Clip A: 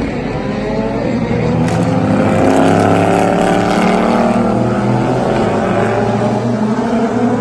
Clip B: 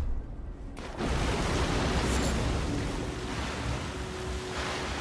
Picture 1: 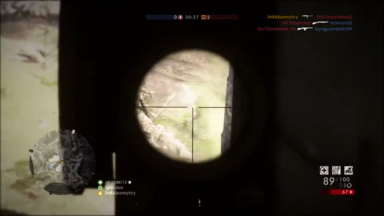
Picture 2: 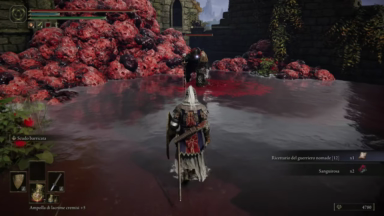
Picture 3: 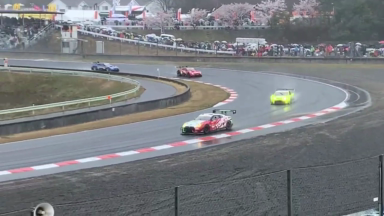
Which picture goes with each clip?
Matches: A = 3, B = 2